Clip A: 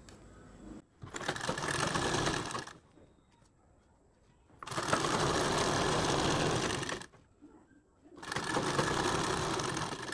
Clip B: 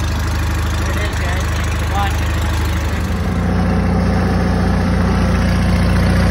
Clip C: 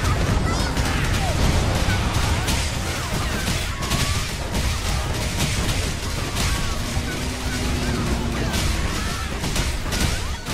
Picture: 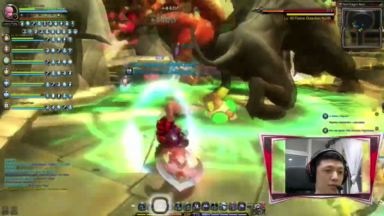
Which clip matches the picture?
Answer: C